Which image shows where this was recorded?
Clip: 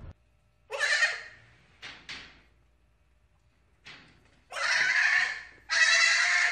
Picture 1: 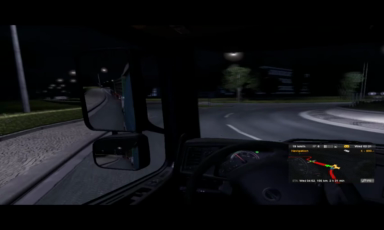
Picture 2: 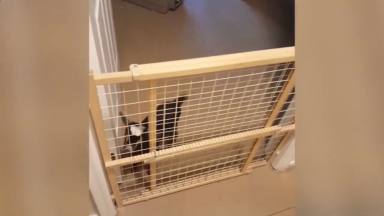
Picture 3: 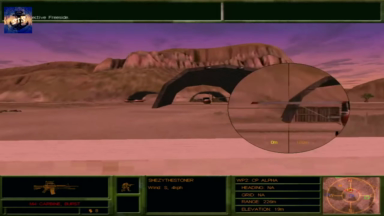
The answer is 2